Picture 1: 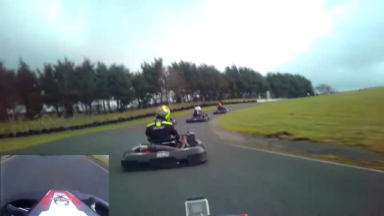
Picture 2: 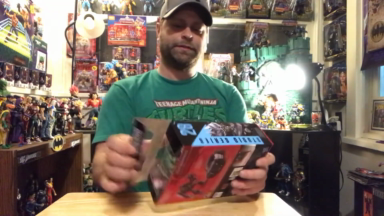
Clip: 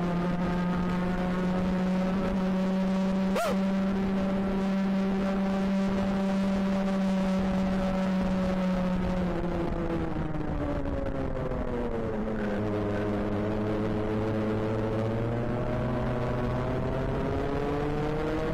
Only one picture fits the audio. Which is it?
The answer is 1